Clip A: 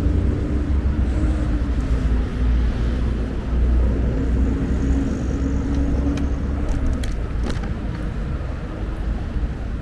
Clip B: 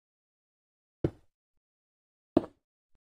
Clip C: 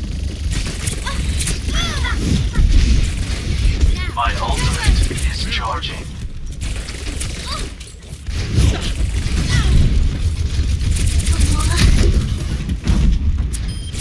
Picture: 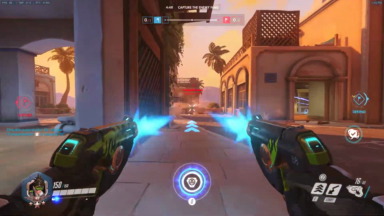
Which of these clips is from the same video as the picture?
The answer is C